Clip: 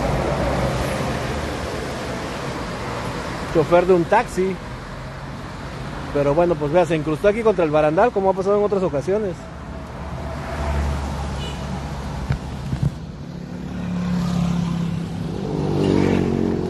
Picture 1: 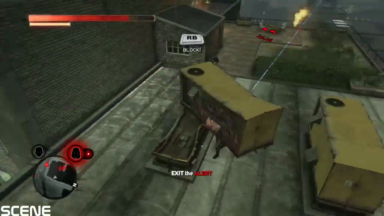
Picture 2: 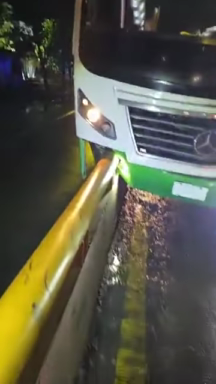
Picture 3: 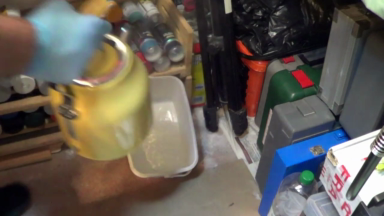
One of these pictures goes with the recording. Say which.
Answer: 2